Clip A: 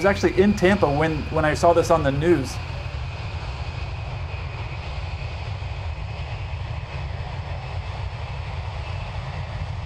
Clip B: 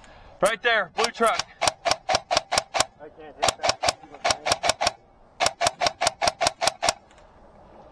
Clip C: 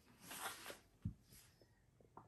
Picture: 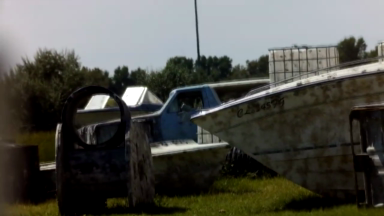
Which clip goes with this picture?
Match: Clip B